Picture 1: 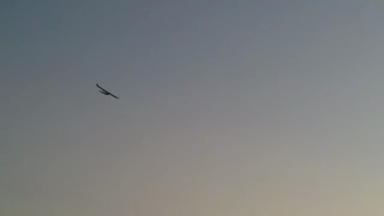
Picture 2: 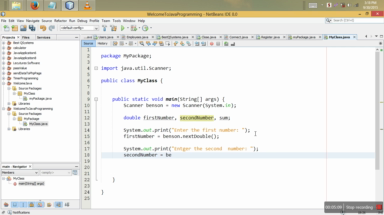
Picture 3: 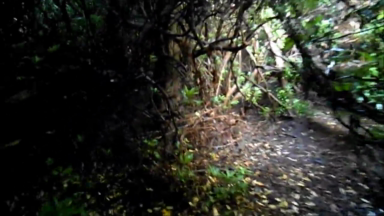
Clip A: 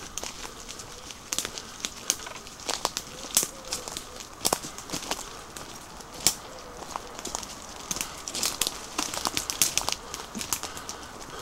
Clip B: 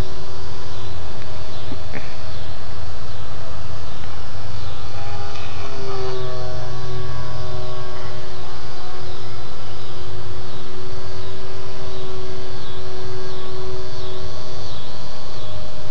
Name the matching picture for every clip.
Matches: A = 3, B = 1